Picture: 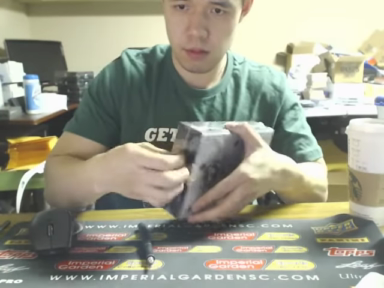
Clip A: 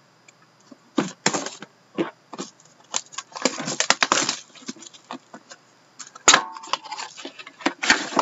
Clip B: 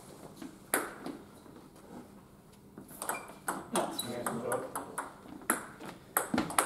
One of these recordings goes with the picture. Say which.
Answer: A